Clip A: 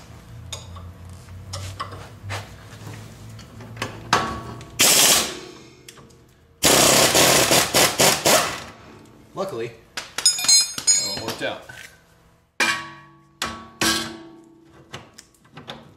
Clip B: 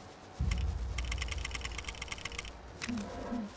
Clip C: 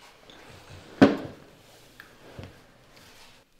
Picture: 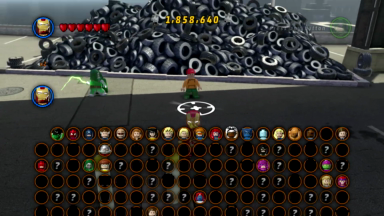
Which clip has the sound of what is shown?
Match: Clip B